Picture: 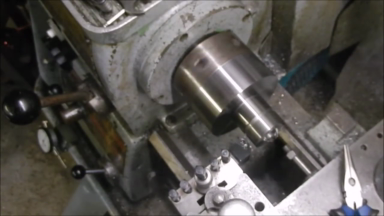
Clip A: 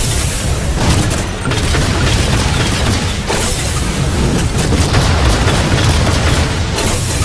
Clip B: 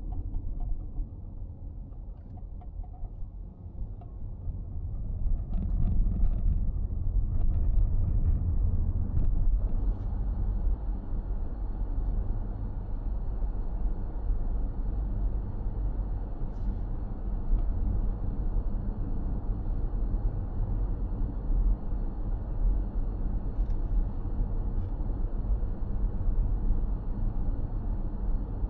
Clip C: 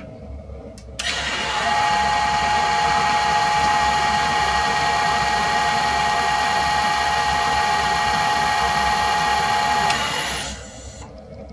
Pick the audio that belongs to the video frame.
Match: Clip C